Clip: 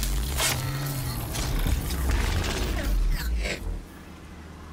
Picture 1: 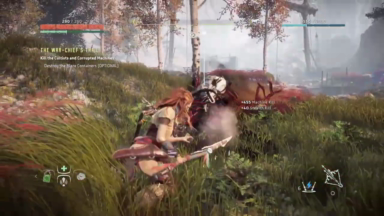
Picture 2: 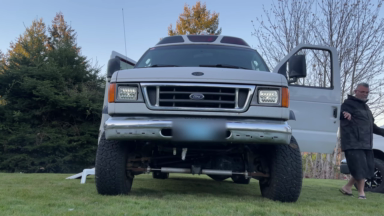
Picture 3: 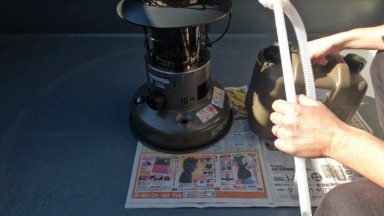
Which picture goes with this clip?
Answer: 1